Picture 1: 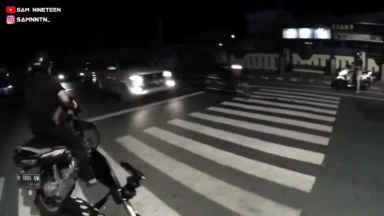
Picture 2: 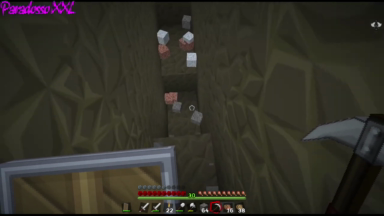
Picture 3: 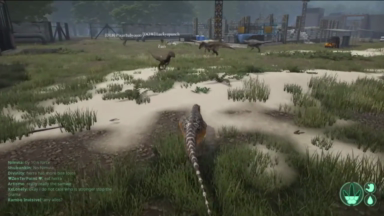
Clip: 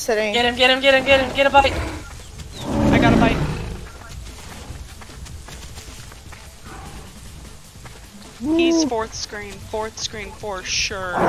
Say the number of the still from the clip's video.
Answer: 3